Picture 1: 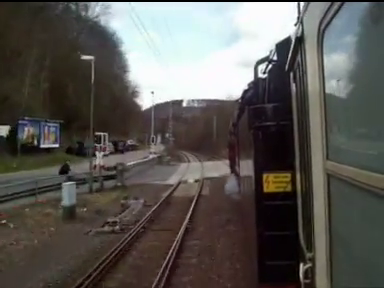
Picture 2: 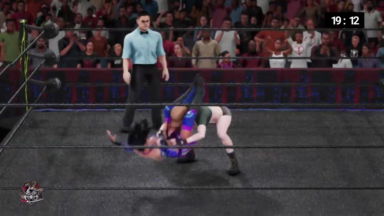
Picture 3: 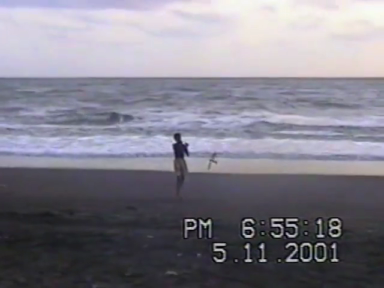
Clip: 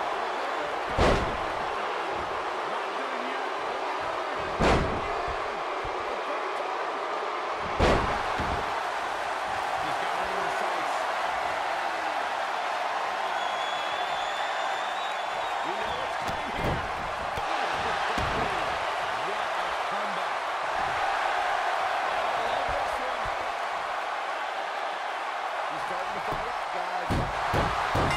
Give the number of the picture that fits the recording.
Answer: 2